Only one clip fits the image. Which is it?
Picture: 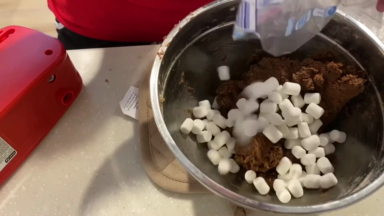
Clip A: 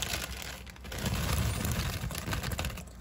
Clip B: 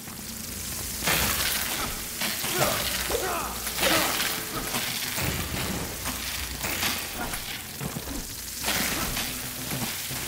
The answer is A